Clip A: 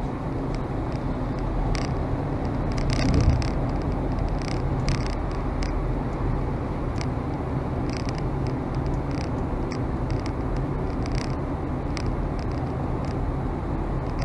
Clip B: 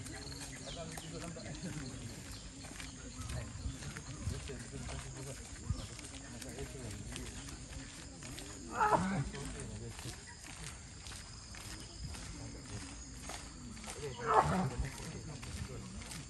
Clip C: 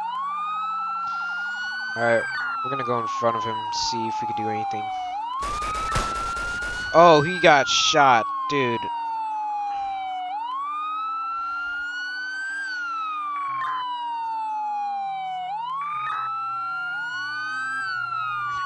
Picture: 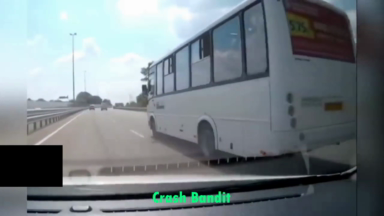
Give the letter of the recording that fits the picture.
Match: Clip A